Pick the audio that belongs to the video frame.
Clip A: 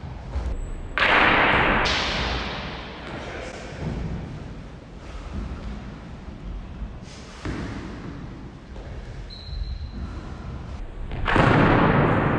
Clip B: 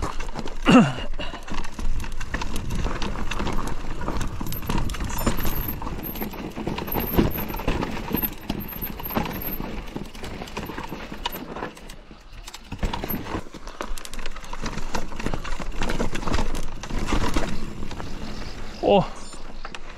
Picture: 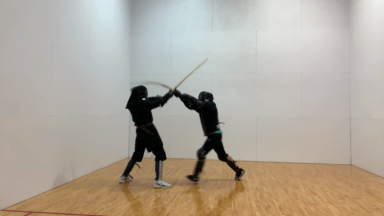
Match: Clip A